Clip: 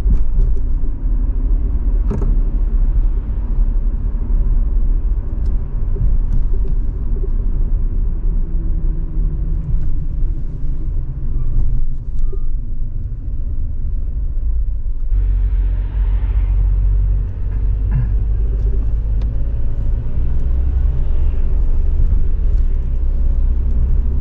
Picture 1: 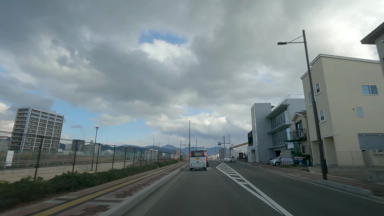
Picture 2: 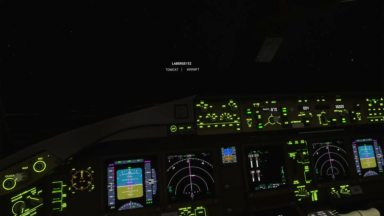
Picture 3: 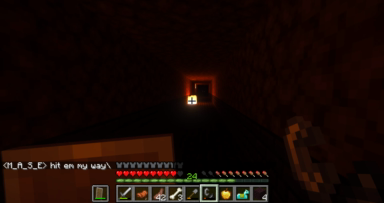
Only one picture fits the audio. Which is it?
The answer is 1